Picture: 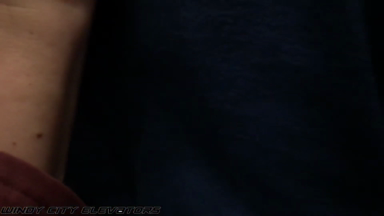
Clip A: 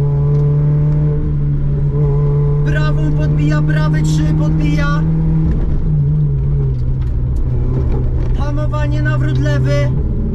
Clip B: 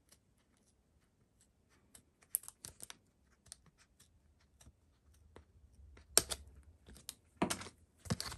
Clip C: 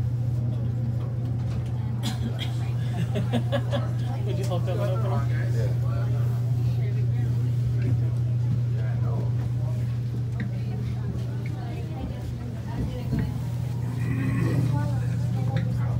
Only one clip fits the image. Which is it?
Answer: C